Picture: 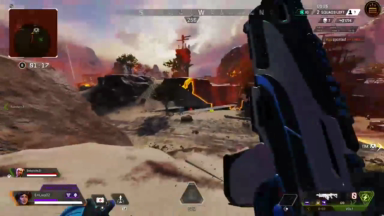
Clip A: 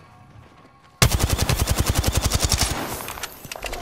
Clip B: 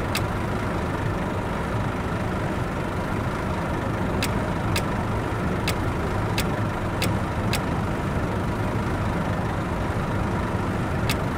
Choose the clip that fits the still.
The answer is A